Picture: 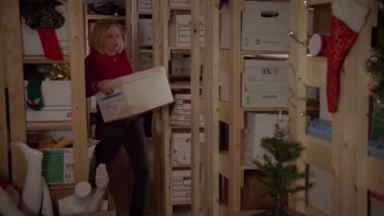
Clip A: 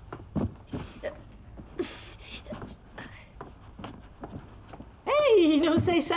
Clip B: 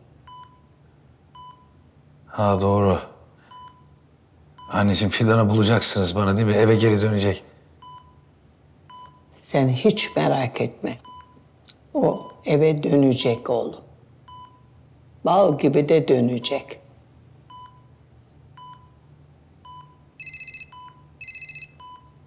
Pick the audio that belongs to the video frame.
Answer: A